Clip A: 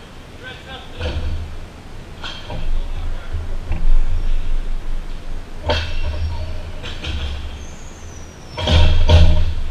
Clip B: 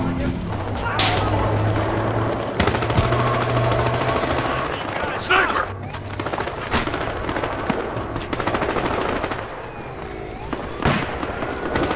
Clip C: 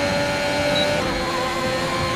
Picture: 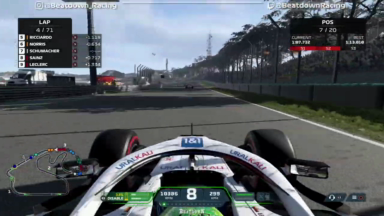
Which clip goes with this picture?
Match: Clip C